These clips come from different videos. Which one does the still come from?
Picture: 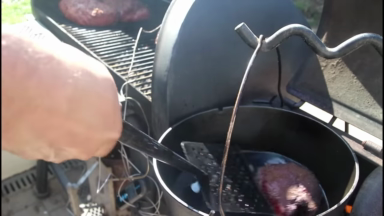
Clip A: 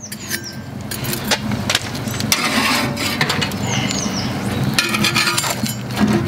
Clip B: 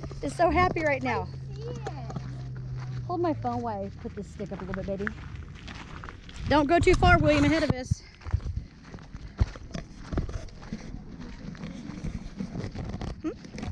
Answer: A